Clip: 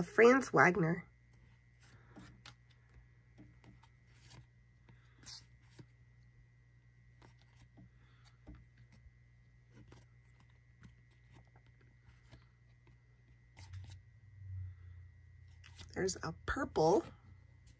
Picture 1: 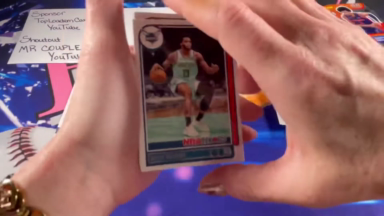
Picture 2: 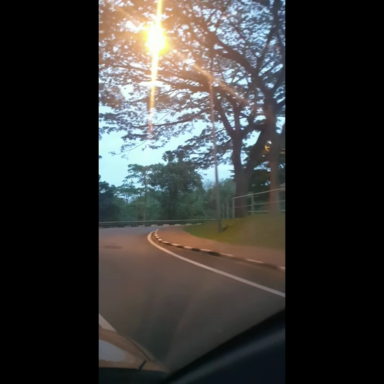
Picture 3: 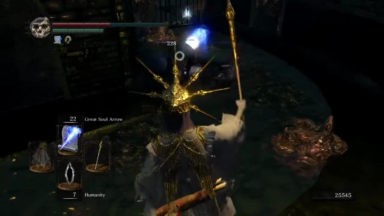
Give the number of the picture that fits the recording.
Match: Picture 1